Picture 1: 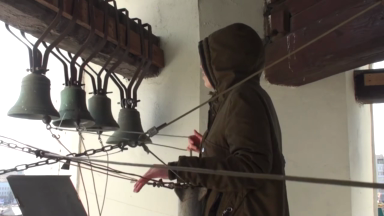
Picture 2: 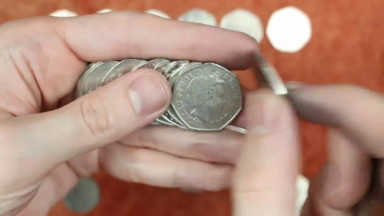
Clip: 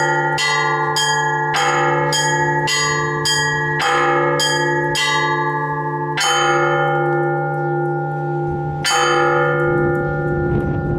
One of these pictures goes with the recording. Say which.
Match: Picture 1